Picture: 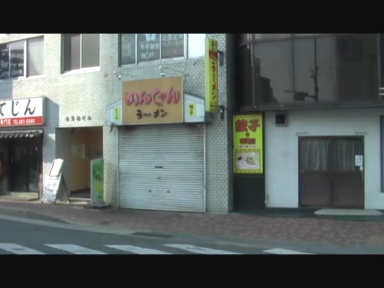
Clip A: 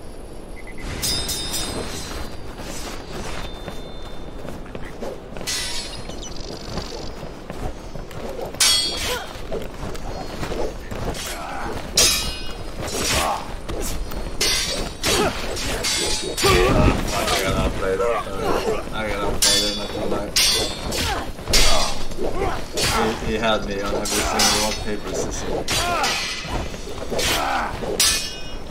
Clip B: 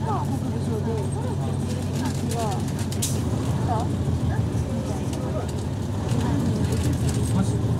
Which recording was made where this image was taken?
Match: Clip B